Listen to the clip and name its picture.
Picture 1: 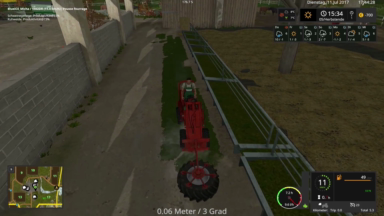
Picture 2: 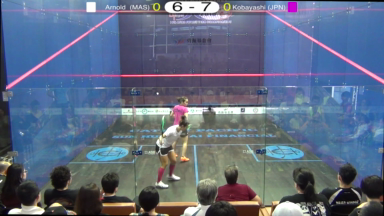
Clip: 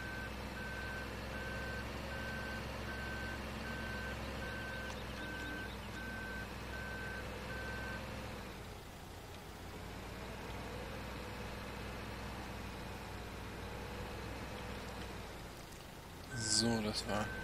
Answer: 1